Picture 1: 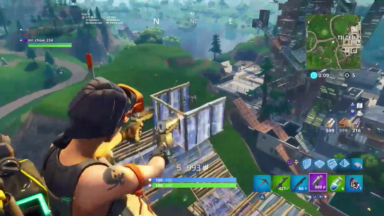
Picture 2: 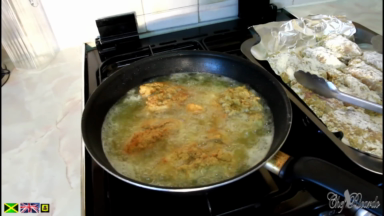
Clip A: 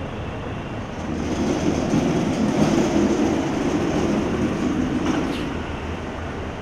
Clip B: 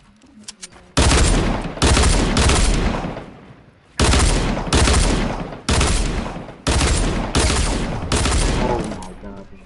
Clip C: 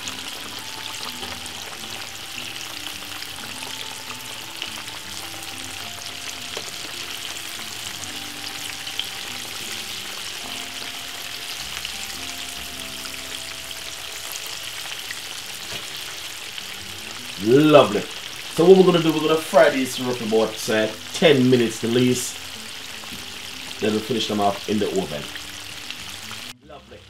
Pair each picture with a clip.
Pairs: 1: B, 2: C